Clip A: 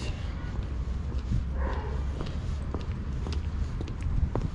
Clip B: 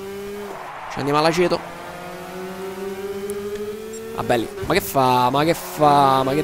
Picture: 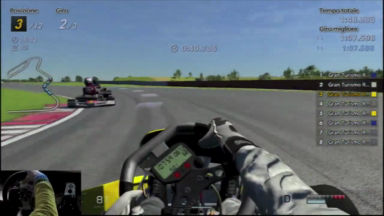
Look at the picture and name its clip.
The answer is B